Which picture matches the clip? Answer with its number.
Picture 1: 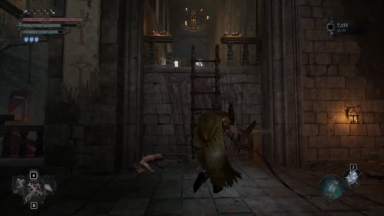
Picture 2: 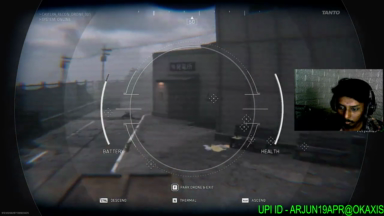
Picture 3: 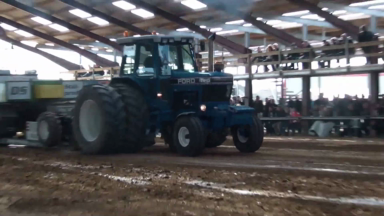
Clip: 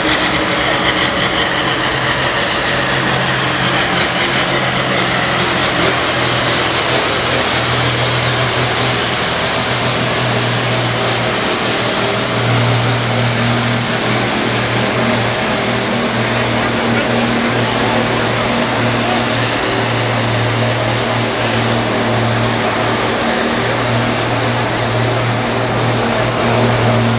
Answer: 3